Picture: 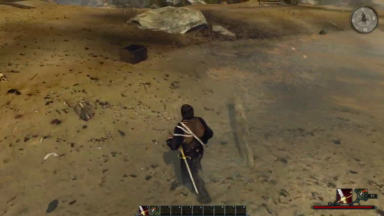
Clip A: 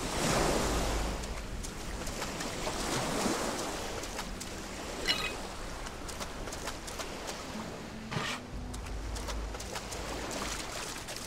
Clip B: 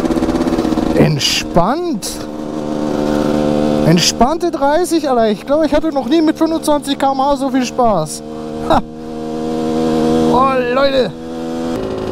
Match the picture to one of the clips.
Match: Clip A